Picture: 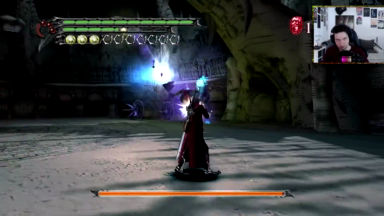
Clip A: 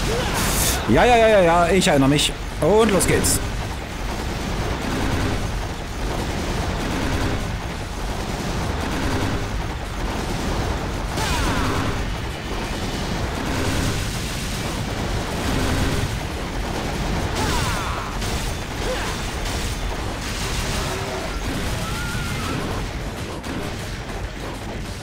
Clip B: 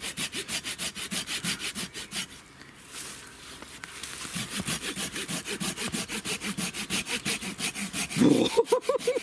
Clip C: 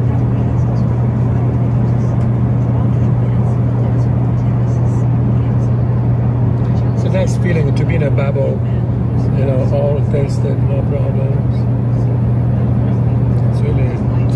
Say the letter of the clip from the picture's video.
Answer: A